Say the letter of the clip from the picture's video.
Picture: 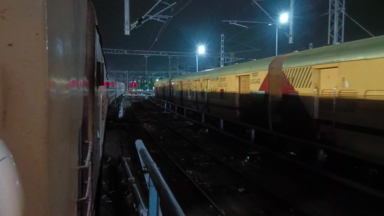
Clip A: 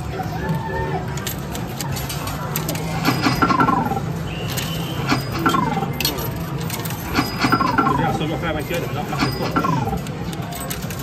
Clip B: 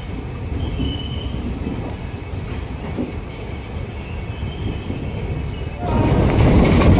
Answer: B